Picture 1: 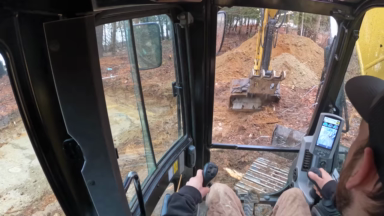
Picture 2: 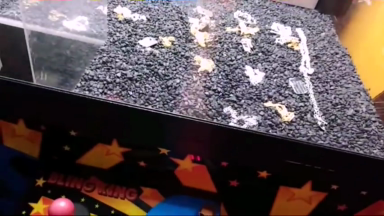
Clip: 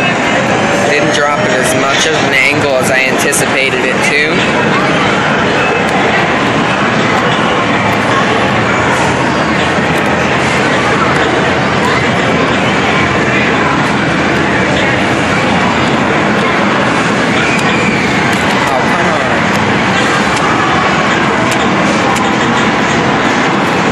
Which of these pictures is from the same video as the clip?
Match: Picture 2